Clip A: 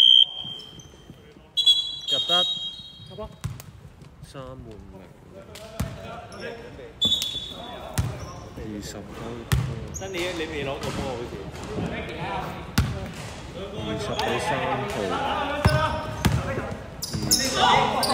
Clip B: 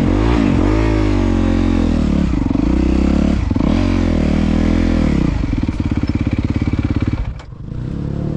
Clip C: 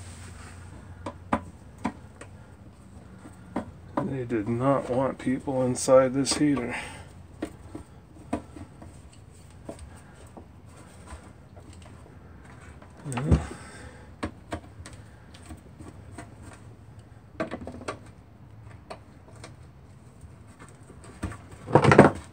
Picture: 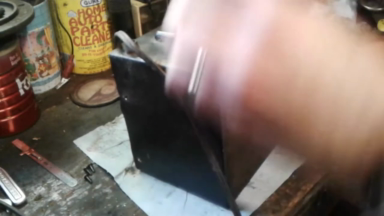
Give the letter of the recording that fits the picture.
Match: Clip C